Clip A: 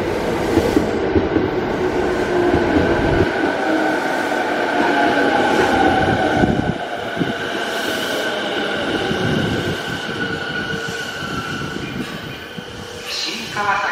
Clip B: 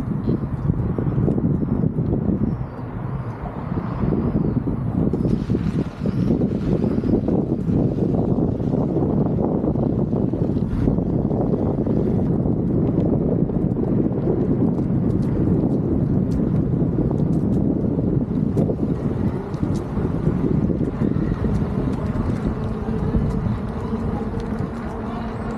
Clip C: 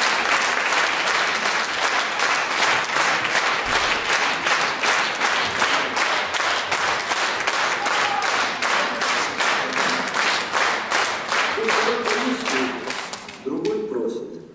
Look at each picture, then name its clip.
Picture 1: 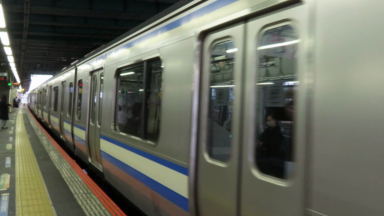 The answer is A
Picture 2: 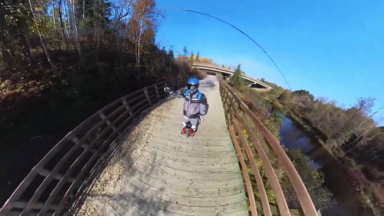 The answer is B